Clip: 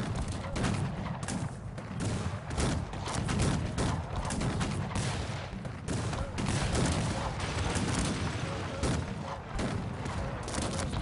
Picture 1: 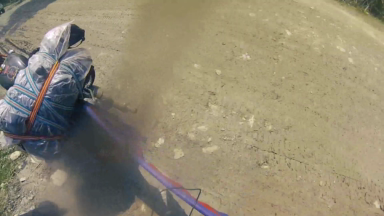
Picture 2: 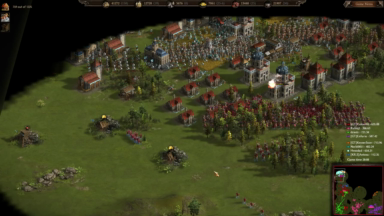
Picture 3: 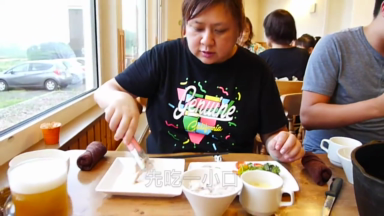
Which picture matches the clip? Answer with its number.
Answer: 2